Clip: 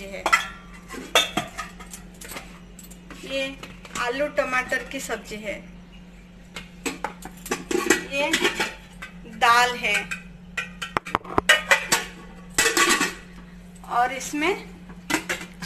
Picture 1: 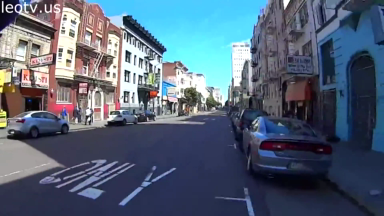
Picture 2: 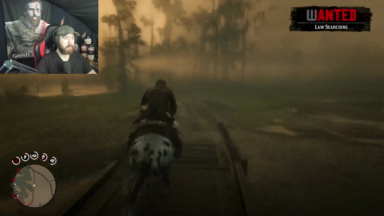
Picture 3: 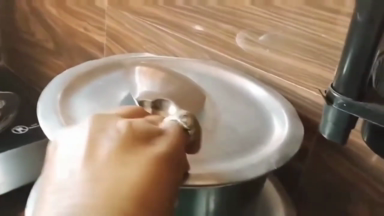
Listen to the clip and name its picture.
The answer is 3